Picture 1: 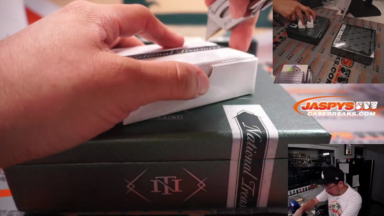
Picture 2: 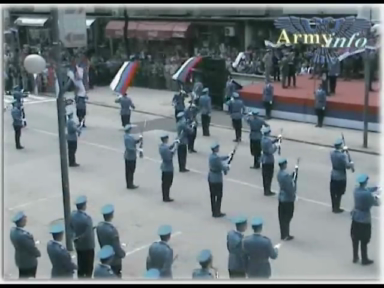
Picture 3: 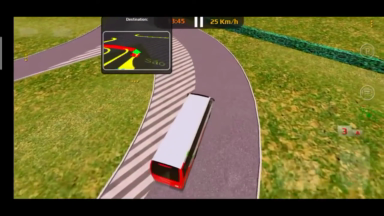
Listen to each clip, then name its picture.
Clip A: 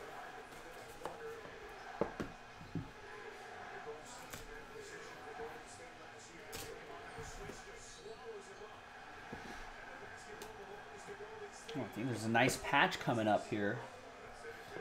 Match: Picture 1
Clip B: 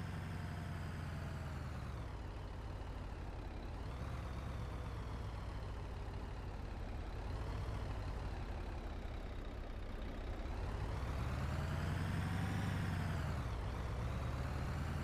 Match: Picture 3